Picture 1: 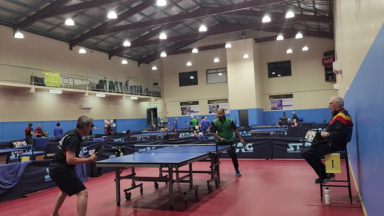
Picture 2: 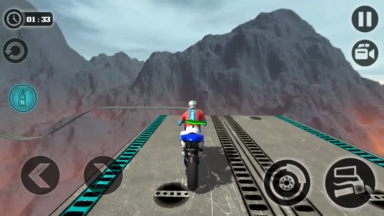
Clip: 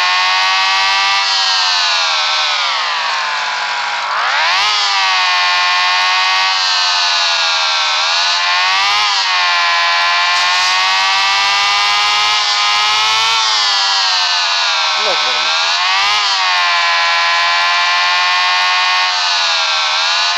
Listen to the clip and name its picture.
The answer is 2